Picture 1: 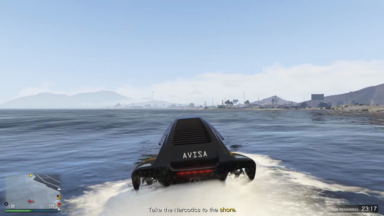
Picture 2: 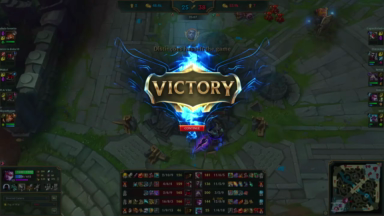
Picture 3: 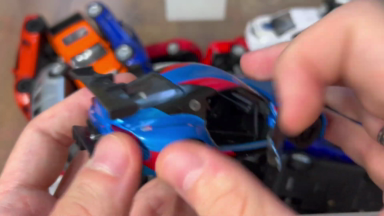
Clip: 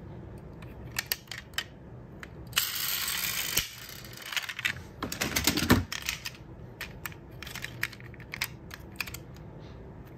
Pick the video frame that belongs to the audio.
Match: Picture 3